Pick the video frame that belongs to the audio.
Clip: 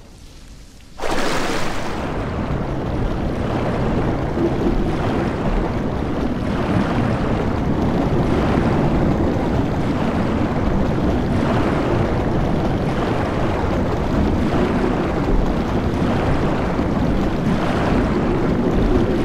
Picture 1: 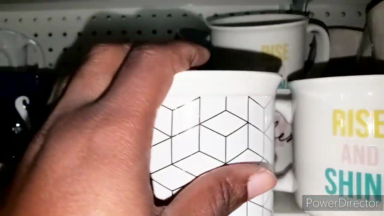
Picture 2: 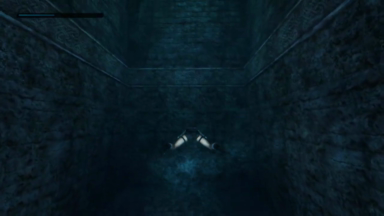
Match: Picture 2